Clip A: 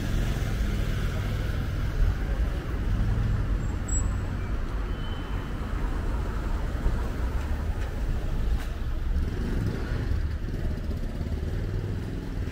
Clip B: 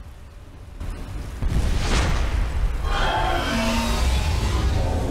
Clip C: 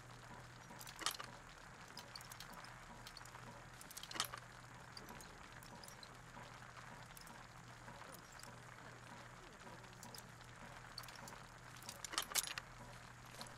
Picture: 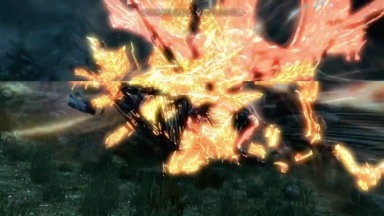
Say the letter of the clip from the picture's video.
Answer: B